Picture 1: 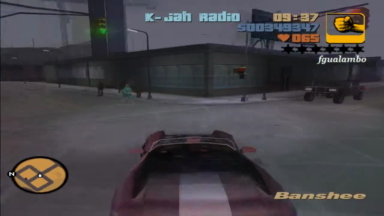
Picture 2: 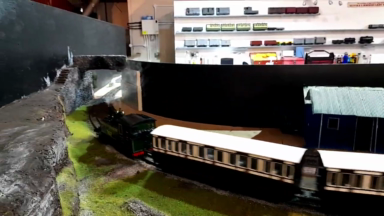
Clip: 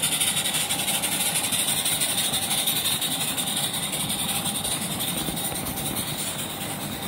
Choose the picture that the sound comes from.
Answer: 2